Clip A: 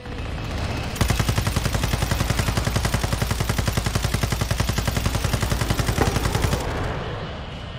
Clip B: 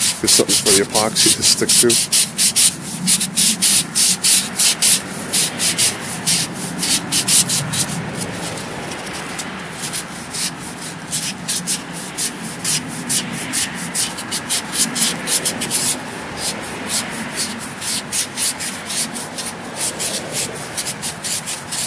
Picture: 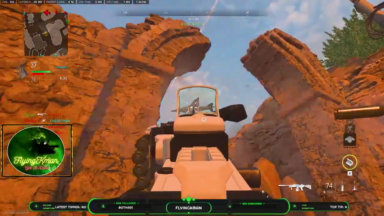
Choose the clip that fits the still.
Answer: A